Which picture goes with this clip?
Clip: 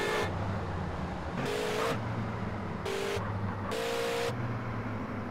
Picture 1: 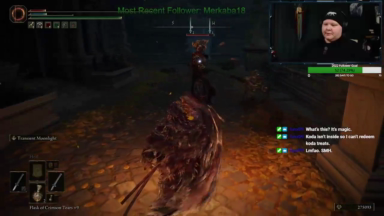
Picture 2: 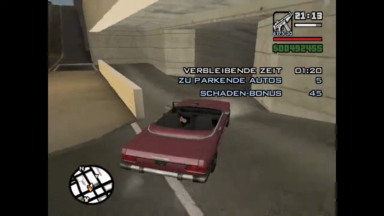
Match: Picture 2